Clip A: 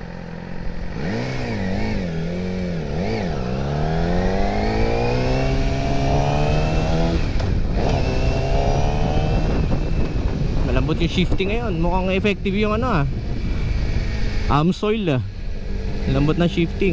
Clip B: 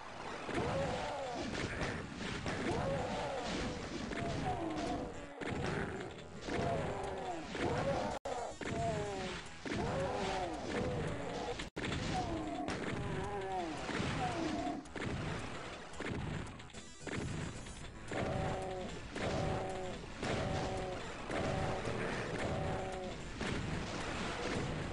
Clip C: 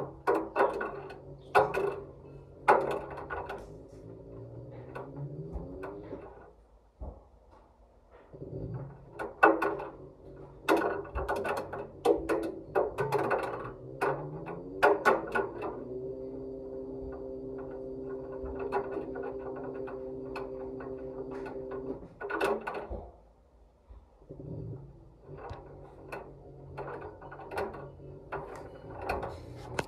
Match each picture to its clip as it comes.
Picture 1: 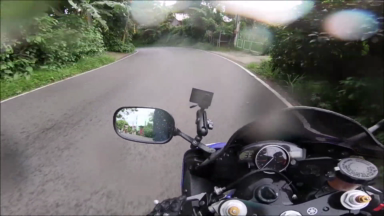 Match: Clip A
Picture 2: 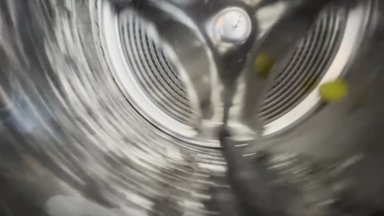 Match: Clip C